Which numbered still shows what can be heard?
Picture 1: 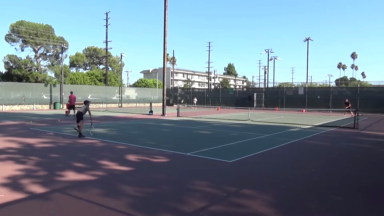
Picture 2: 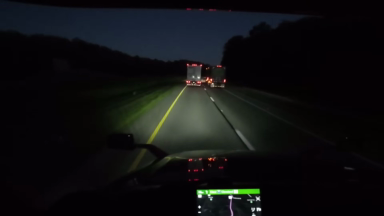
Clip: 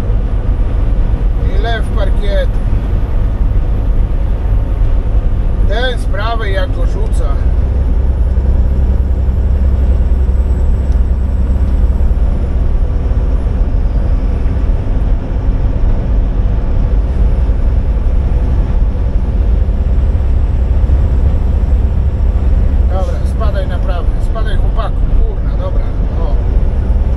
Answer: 2